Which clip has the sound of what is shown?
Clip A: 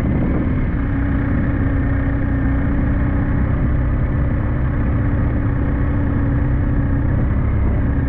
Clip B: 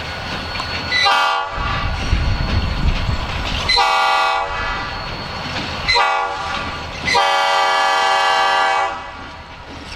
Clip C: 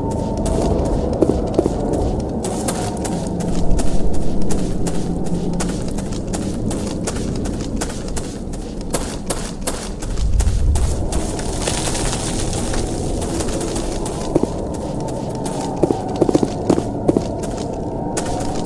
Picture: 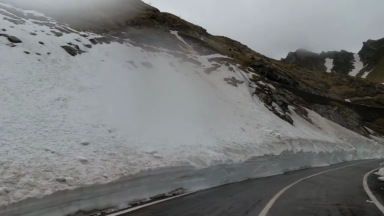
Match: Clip A